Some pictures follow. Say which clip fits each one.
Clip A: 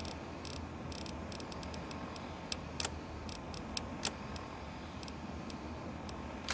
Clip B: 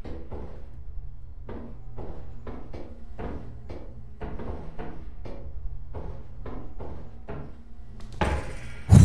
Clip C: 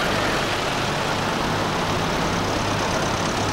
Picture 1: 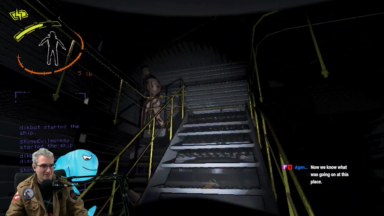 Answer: B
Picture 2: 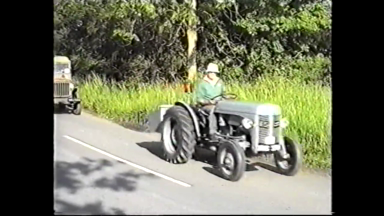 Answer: C